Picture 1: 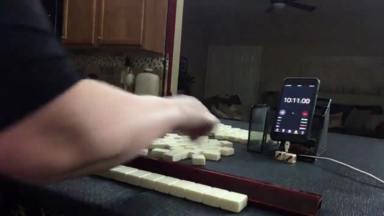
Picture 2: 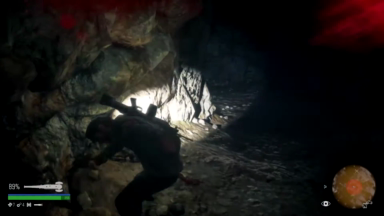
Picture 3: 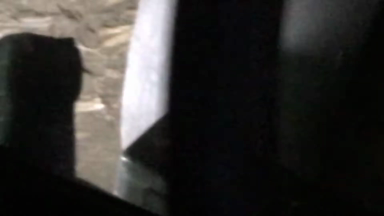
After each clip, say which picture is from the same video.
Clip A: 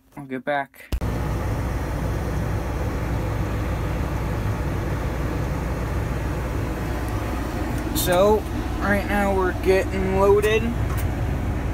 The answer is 3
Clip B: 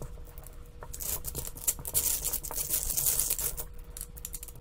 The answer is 1